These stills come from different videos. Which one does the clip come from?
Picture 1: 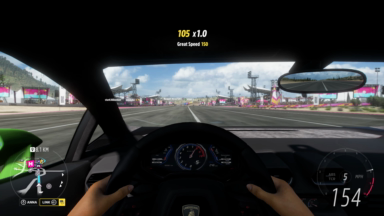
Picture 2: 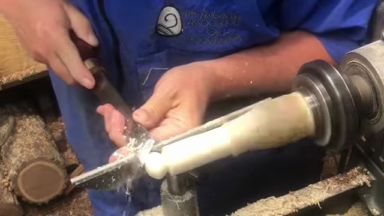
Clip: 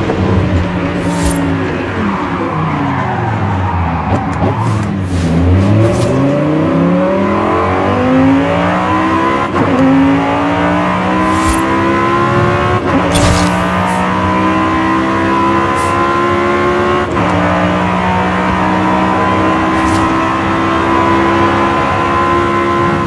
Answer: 1